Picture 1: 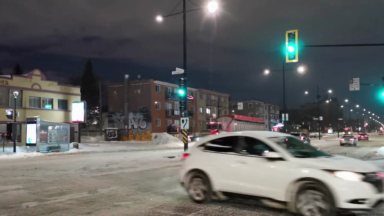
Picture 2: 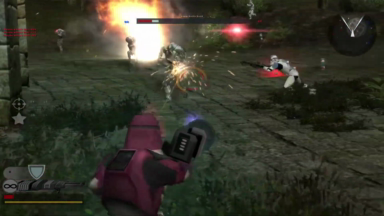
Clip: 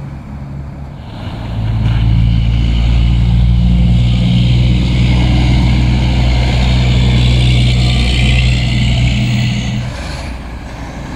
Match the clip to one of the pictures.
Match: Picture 1